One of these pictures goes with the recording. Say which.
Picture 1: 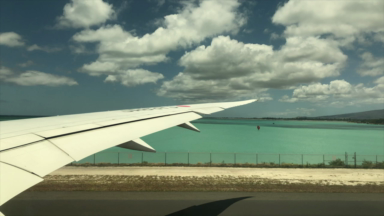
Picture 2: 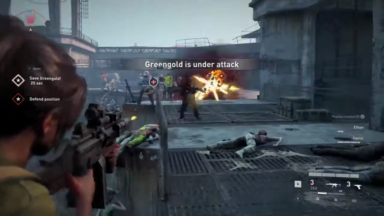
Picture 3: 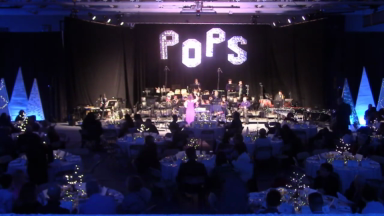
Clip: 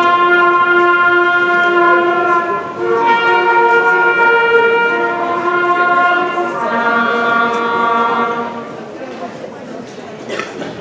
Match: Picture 3